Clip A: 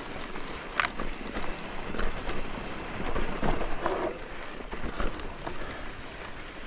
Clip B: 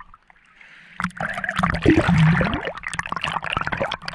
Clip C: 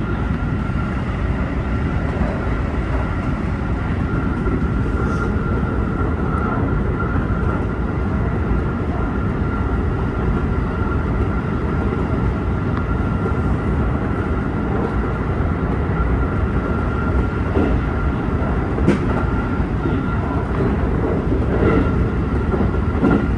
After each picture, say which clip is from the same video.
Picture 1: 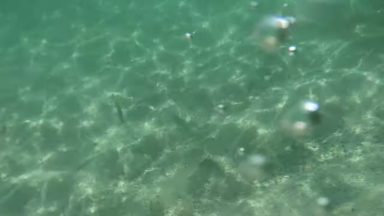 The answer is B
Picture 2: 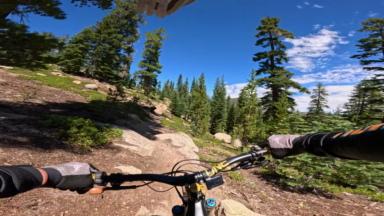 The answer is A